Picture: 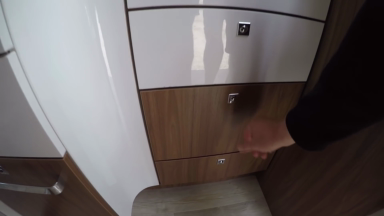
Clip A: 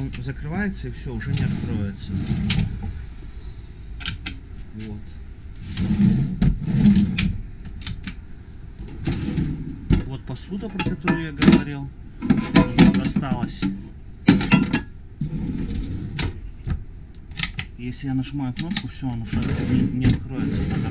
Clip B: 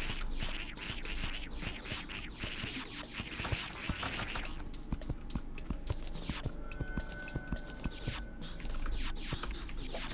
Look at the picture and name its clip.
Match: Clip A